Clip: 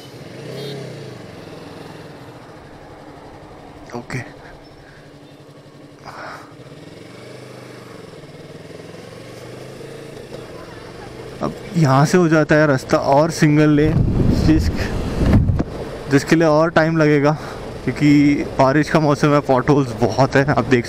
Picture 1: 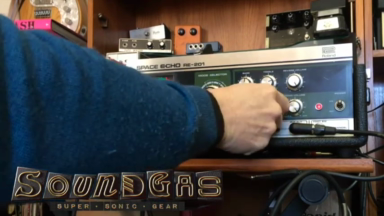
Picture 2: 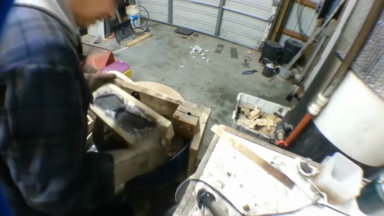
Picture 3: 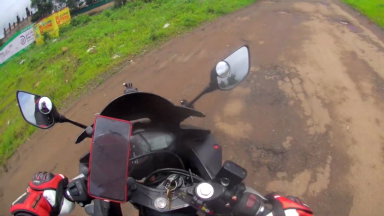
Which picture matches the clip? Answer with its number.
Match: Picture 3